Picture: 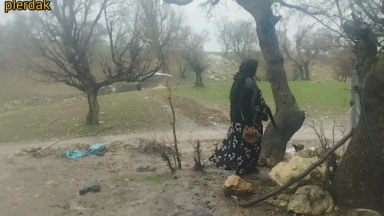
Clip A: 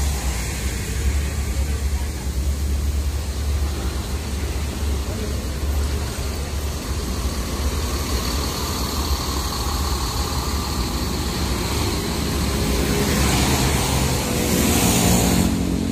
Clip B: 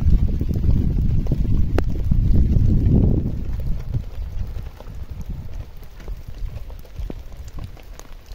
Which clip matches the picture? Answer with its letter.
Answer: B